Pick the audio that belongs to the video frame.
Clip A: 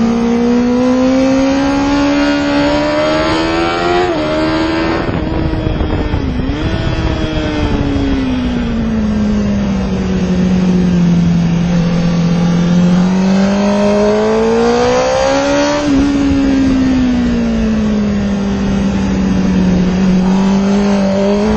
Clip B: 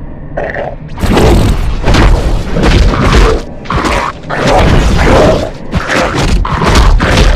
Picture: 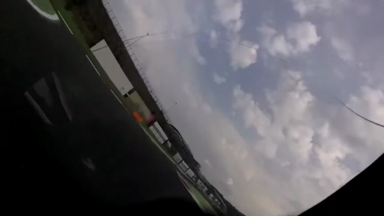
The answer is A